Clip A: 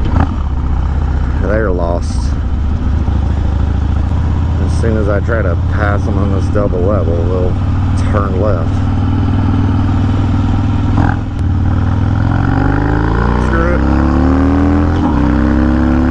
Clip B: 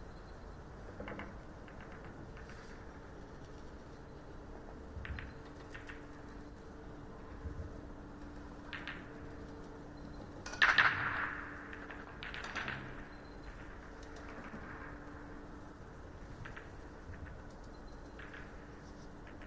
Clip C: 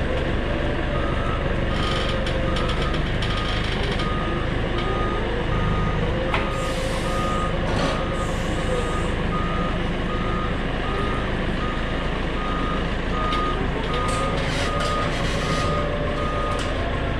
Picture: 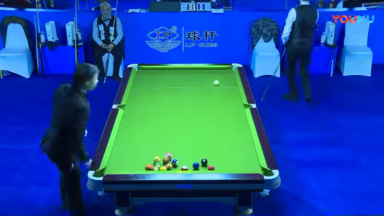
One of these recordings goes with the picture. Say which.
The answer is B